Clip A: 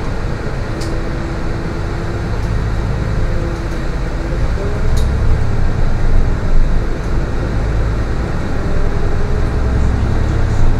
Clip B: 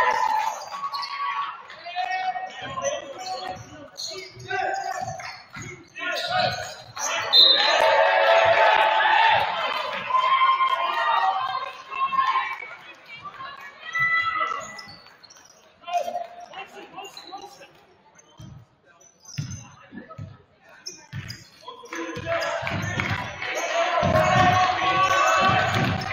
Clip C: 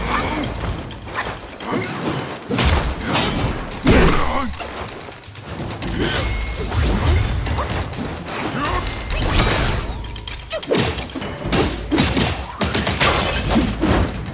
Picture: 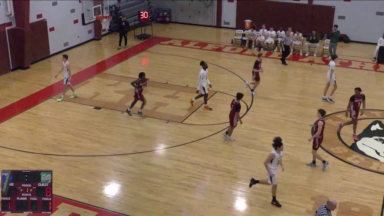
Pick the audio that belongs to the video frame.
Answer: B